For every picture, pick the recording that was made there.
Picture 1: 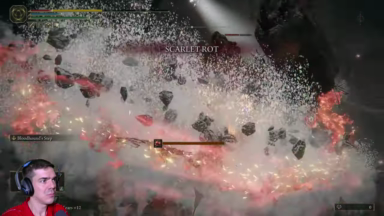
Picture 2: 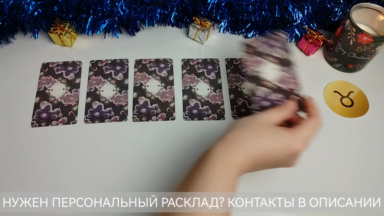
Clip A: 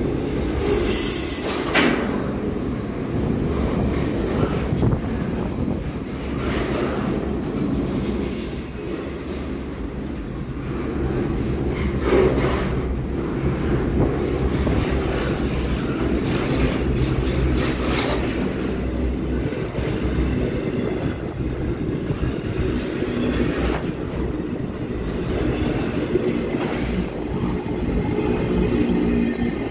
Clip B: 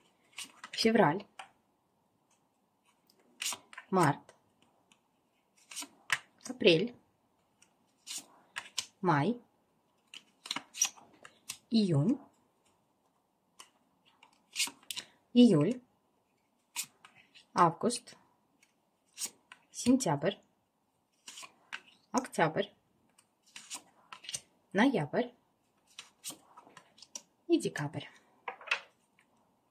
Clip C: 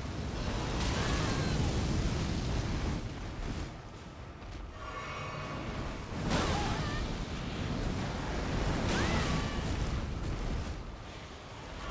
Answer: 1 C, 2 B